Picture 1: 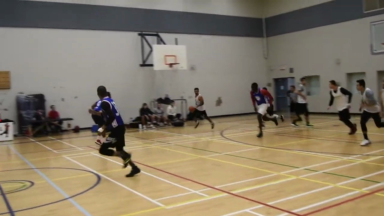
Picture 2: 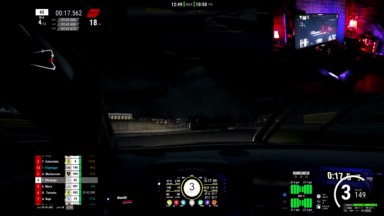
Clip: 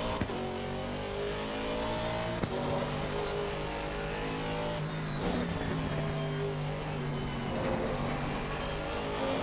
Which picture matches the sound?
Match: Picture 2